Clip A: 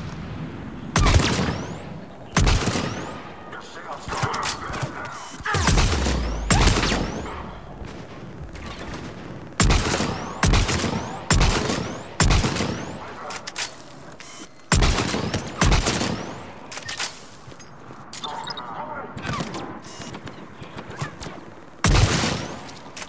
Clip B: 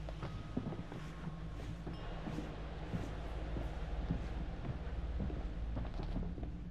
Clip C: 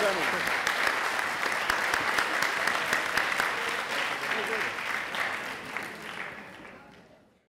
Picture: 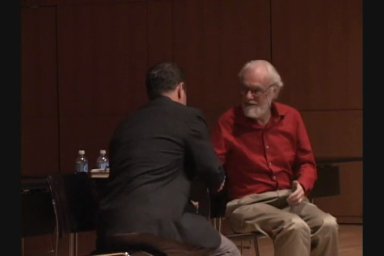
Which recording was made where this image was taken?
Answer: C